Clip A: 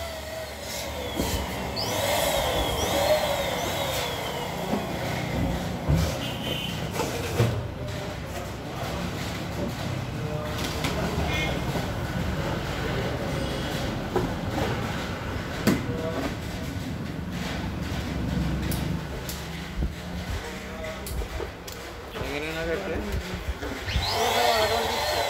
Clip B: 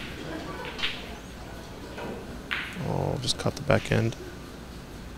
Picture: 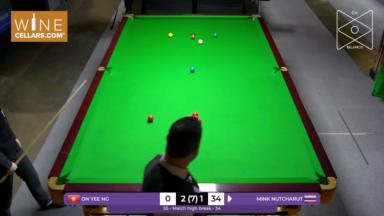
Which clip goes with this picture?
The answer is B